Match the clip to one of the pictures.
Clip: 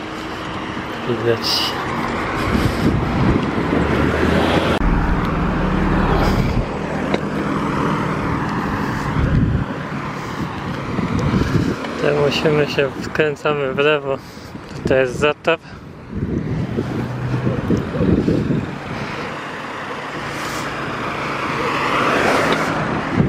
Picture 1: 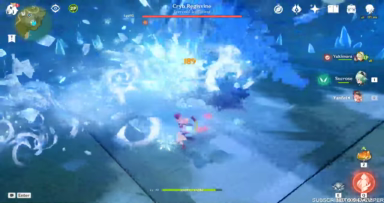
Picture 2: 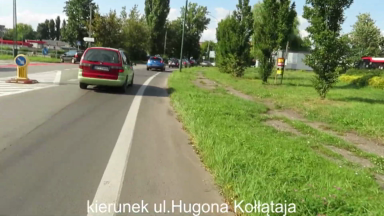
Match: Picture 2